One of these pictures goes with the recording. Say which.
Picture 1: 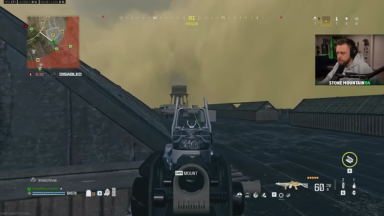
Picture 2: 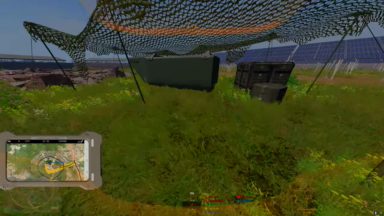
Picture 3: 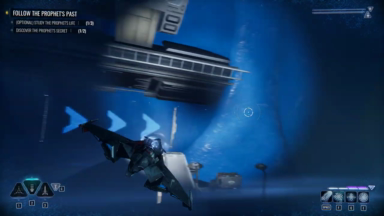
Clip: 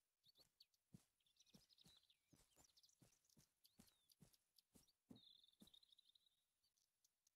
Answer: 2